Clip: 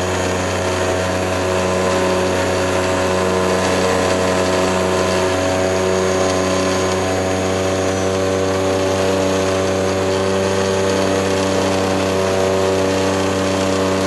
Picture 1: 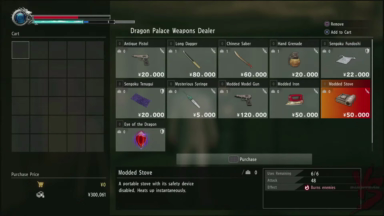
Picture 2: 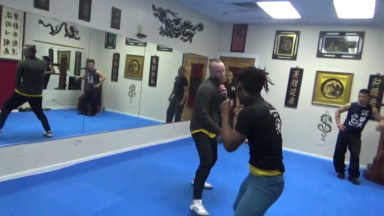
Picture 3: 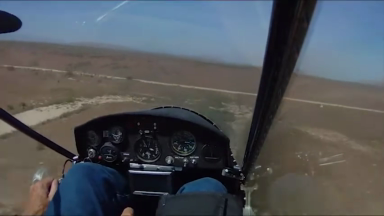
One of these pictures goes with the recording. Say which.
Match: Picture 3